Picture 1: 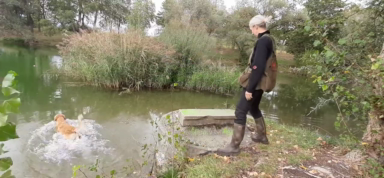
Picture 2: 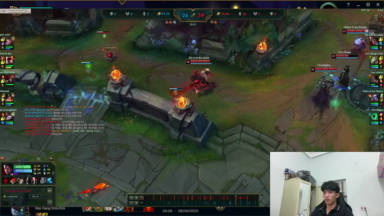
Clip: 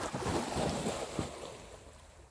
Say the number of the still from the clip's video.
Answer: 1